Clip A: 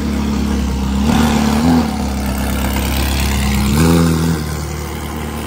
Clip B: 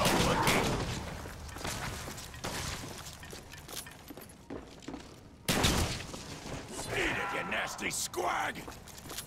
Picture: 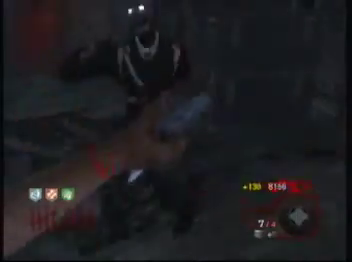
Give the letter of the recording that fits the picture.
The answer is B